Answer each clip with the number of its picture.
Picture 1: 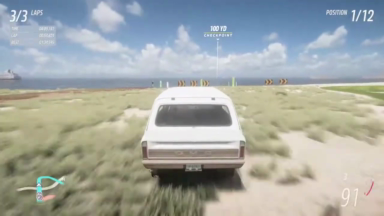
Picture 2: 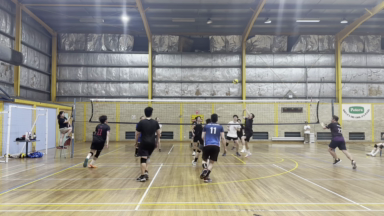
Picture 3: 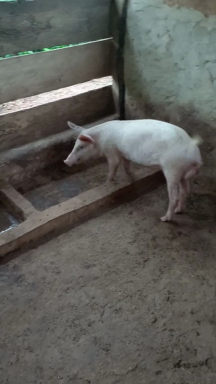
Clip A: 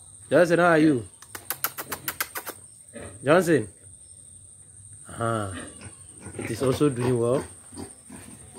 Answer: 3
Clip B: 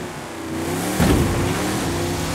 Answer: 1